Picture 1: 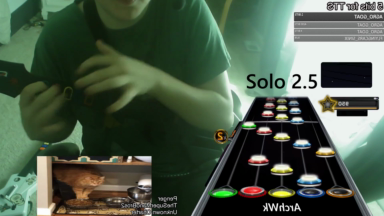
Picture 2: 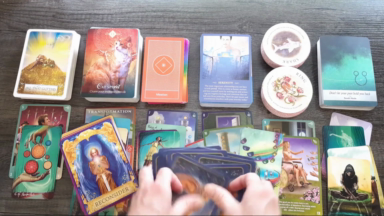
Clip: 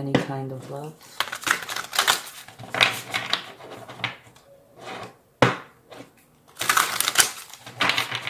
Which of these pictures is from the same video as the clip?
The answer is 2